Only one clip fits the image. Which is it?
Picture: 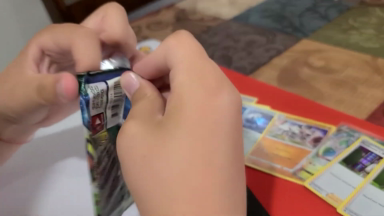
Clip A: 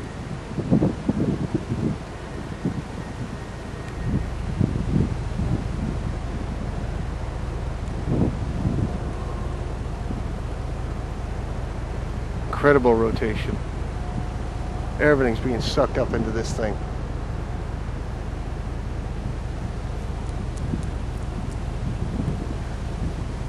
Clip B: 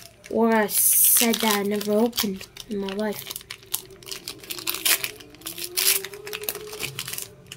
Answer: B